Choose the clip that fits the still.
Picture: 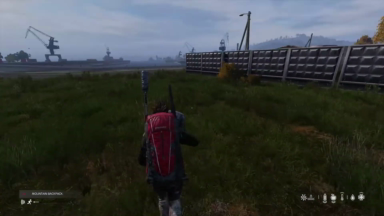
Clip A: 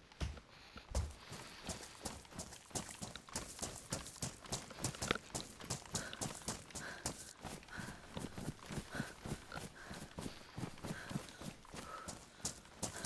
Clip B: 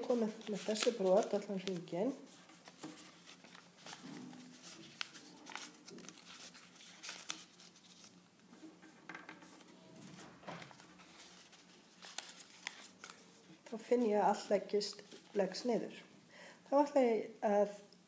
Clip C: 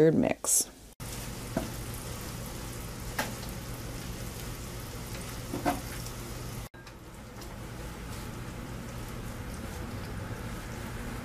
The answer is A